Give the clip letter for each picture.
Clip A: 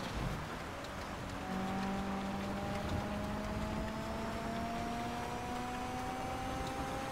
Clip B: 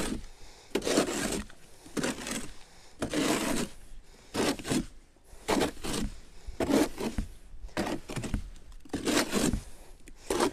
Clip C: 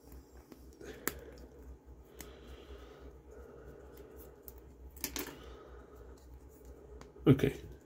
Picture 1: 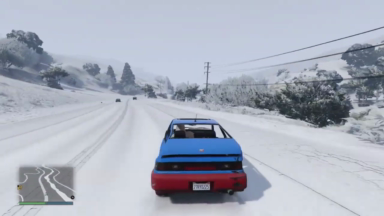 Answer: A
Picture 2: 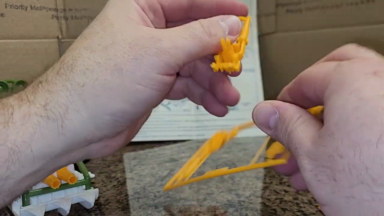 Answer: C